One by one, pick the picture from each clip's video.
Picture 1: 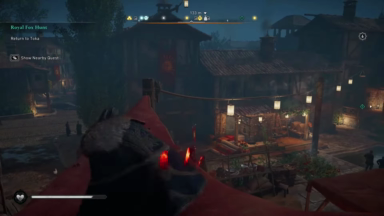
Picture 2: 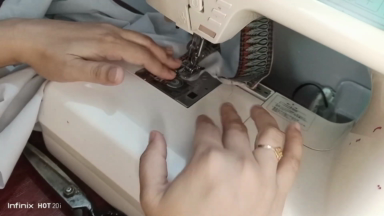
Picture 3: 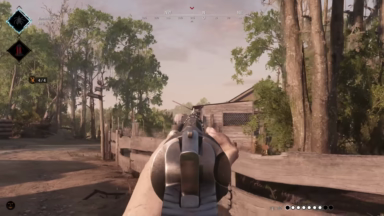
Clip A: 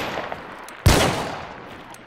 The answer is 3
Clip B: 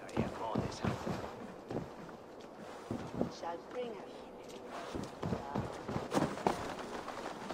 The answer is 1